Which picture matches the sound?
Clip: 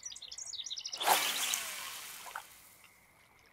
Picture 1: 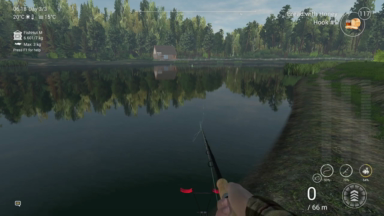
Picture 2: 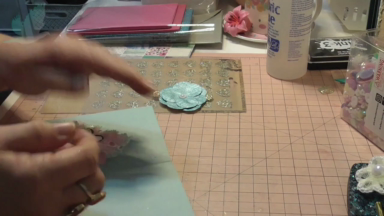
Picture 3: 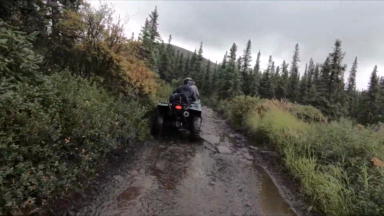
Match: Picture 1